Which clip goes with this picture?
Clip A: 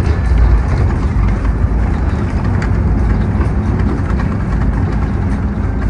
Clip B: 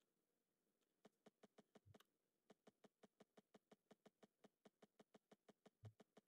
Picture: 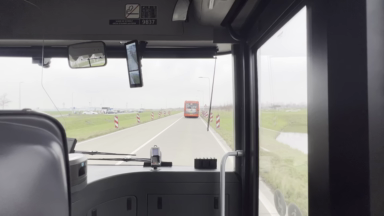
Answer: A